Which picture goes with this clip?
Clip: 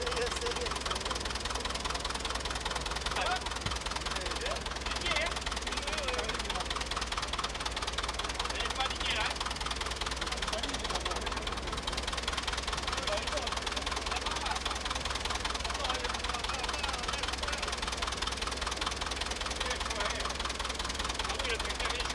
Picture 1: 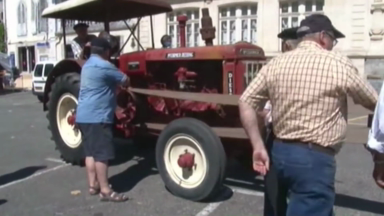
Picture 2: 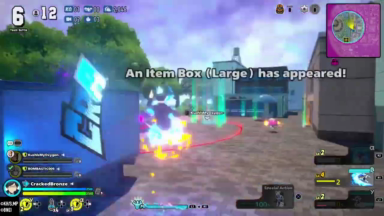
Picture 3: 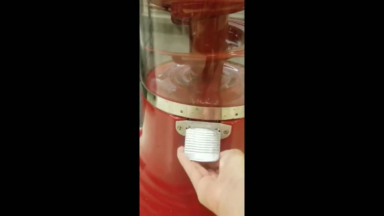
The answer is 1